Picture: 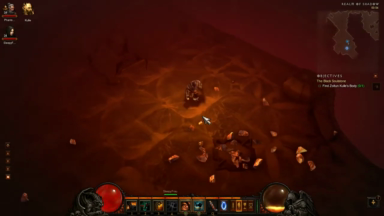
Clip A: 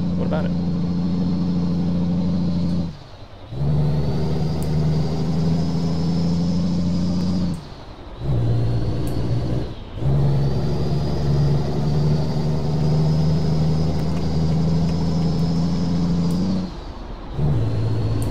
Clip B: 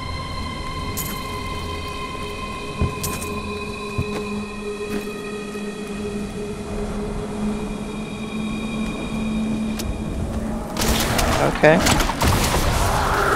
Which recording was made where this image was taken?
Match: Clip B